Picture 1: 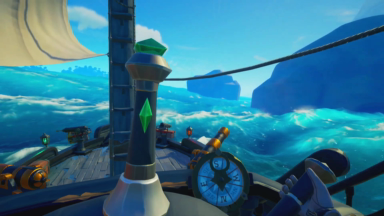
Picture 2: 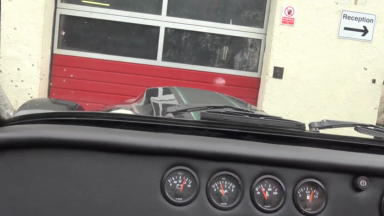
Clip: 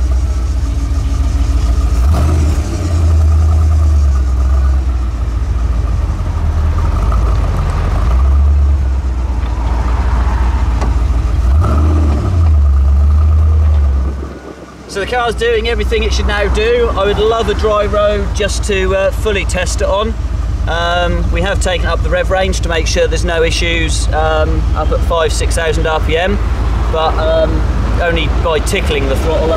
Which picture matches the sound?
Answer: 2